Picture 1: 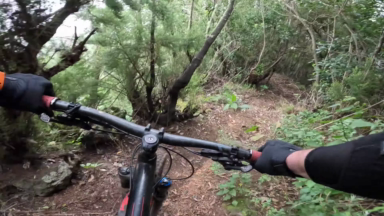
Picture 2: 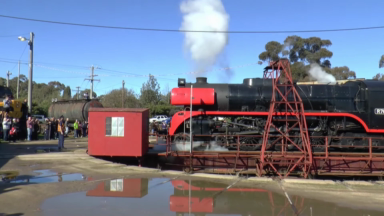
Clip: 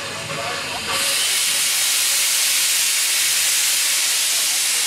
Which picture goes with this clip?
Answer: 2